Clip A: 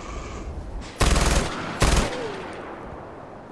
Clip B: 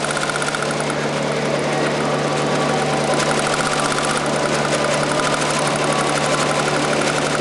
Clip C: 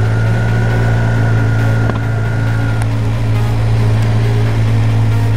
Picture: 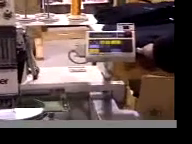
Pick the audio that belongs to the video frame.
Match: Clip B